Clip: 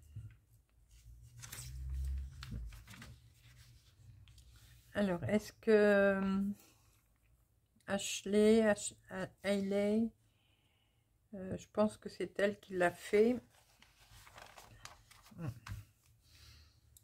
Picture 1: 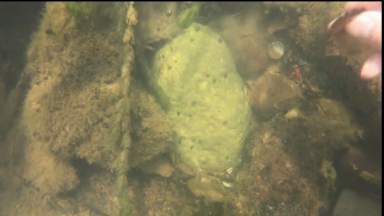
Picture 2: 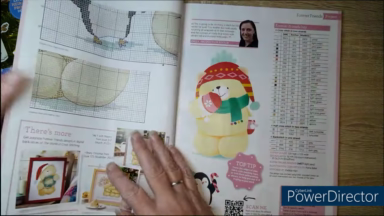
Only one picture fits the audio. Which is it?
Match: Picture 2